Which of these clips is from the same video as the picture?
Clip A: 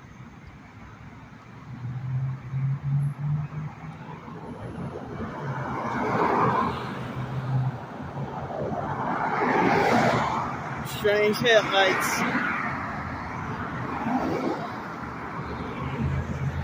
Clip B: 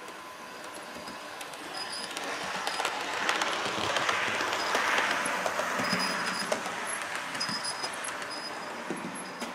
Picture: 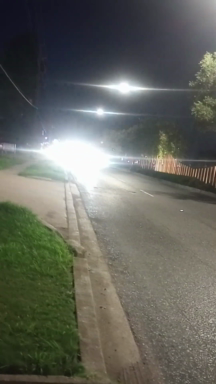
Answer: A